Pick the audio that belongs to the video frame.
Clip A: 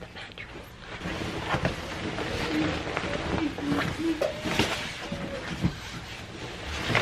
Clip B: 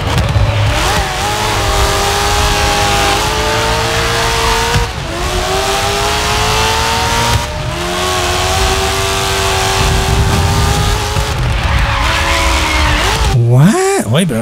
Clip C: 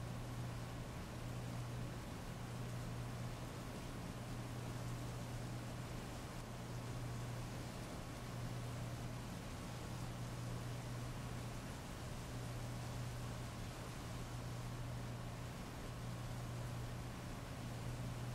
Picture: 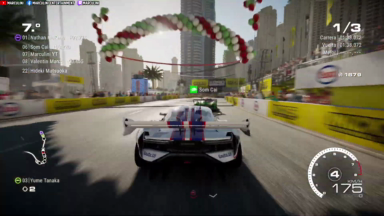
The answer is B